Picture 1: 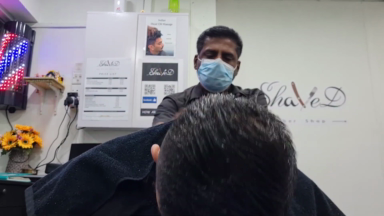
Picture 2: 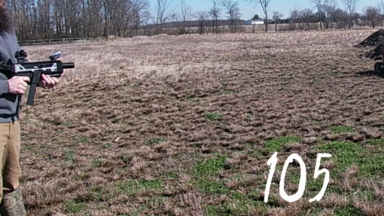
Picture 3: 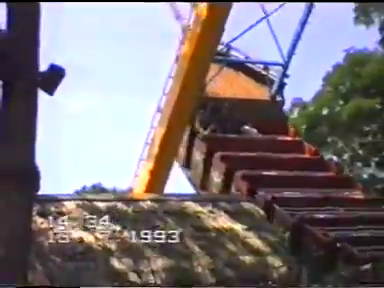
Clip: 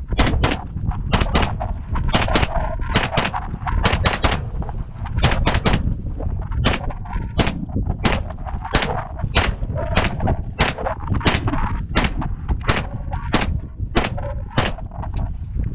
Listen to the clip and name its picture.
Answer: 2